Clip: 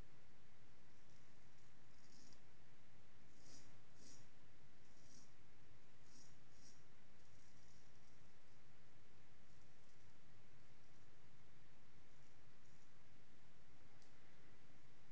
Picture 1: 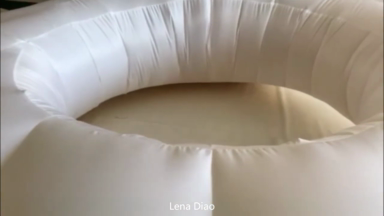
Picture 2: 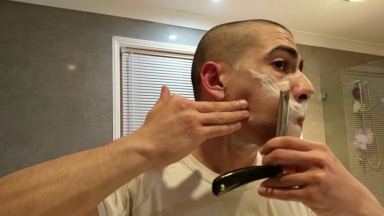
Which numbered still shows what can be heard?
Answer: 2